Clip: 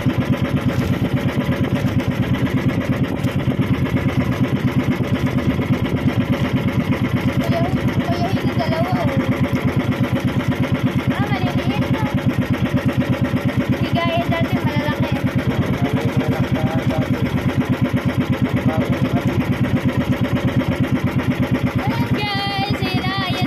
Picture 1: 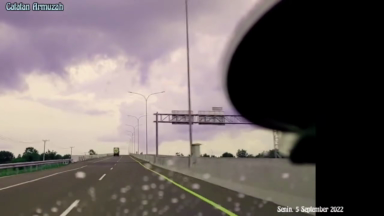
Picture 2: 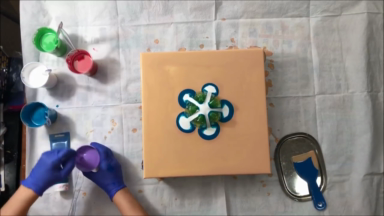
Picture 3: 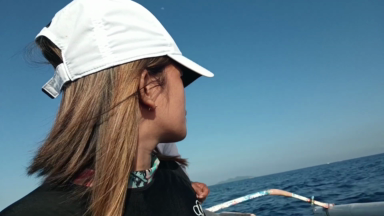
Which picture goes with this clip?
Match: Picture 3